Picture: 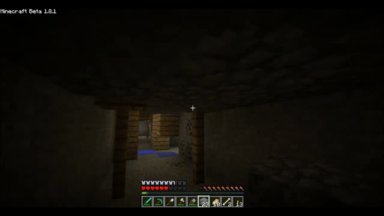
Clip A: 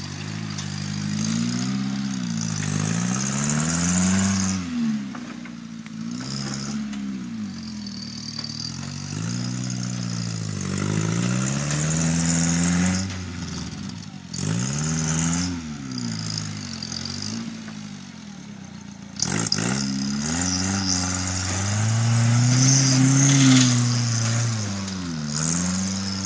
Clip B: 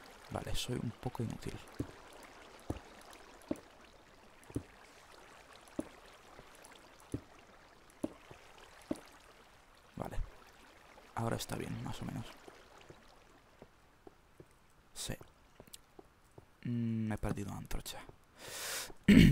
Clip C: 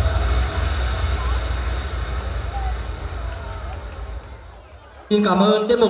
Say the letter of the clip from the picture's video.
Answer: B